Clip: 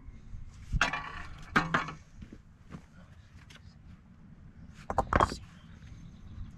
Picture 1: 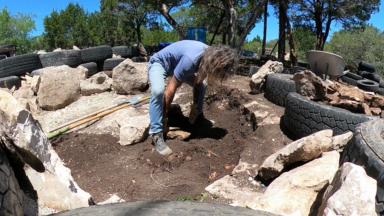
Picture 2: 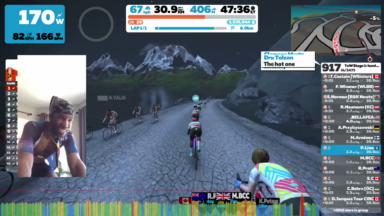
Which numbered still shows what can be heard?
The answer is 1